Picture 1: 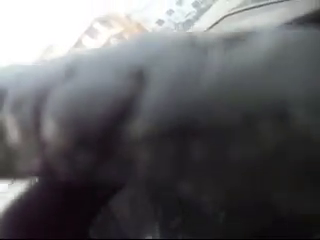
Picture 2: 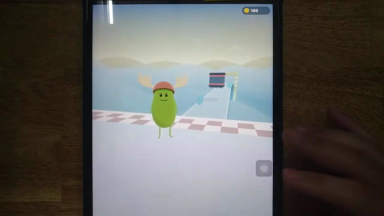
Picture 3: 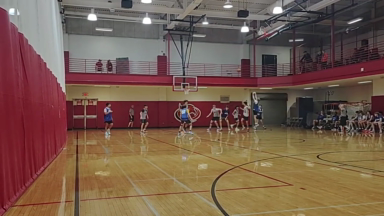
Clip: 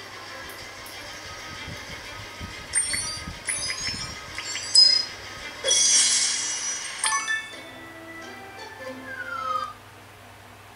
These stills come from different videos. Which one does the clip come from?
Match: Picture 2